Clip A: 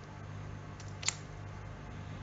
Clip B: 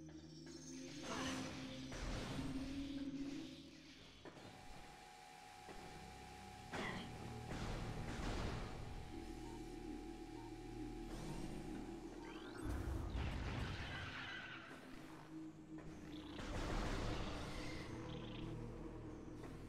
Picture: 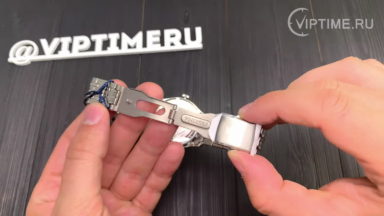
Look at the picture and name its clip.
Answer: A